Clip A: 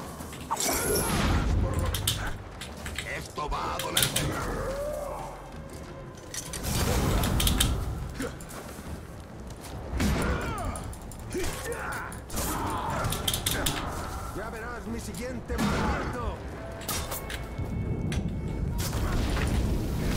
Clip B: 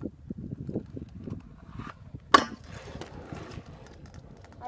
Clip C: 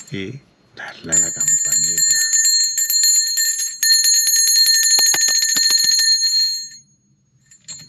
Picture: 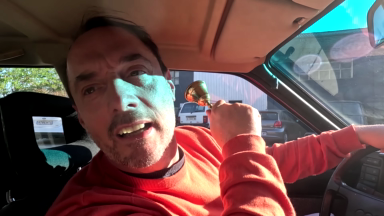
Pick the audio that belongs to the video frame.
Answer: C